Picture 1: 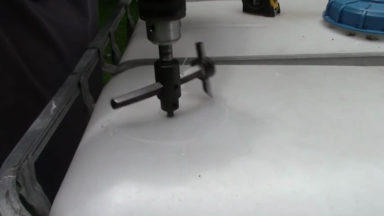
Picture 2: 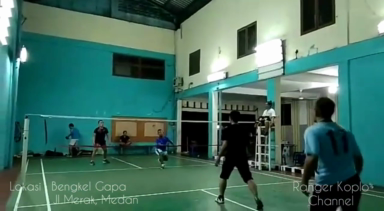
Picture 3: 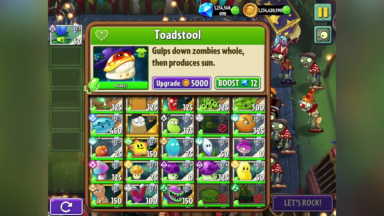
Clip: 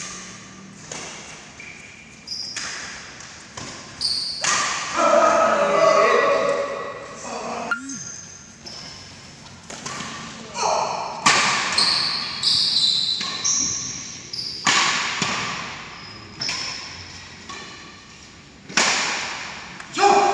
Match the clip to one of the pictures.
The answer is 2